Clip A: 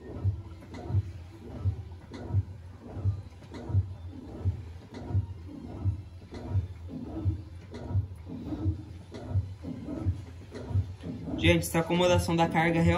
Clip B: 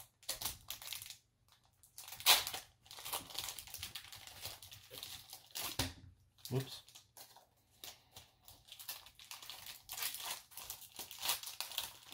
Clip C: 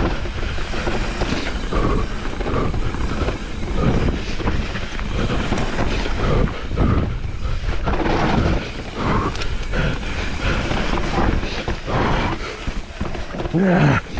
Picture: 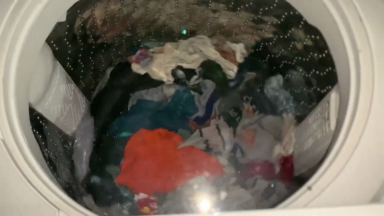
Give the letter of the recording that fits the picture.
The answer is A